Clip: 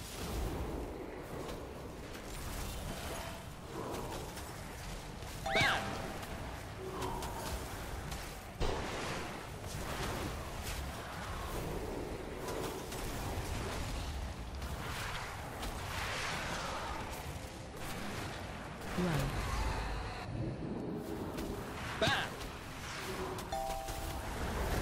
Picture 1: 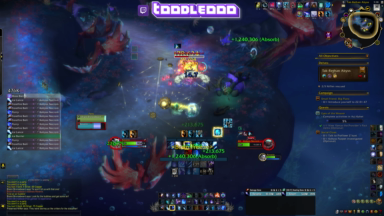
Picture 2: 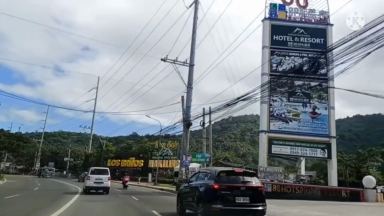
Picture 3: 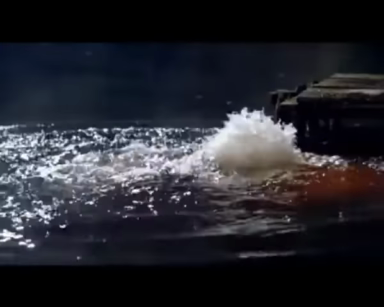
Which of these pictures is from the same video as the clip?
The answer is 1